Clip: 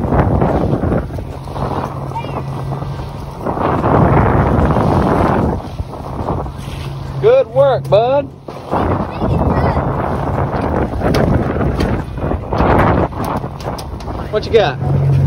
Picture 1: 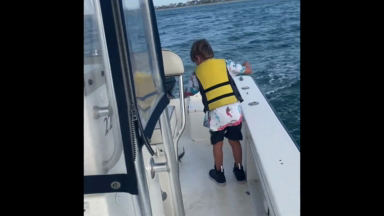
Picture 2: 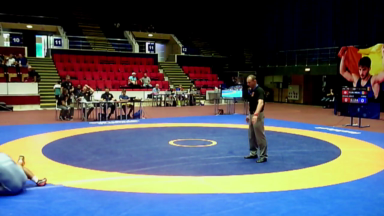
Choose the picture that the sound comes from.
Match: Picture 1